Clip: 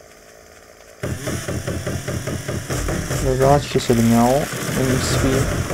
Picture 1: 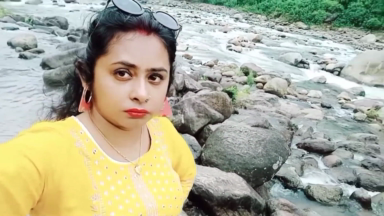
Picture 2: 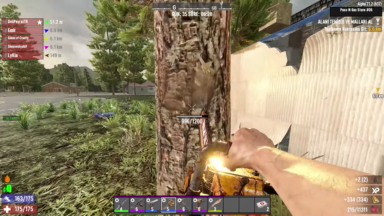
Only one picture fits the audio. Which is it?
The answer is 2